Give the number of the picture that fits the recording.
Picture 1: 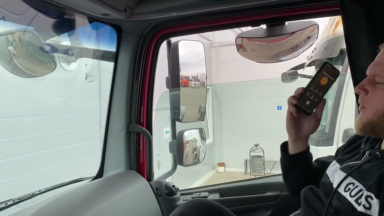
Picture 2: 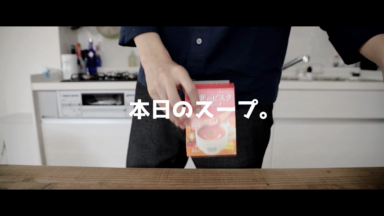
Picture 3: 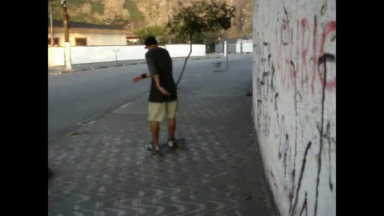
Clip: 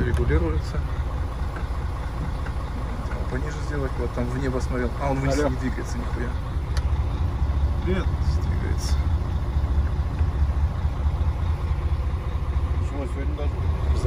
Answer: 1